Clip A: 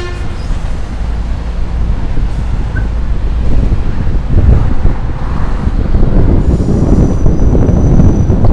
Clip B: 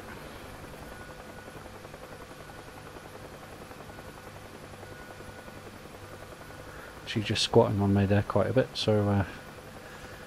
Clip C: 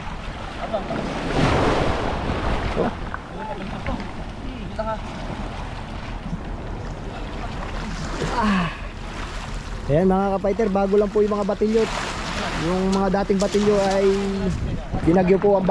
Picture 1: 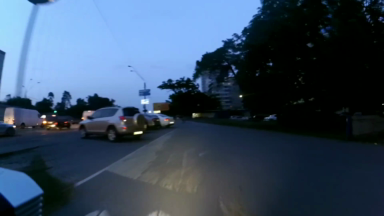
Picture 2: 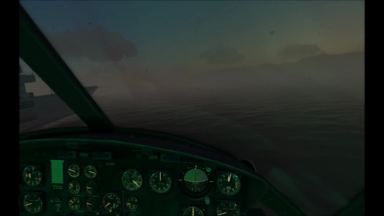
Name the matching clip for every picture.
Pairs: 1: A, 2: B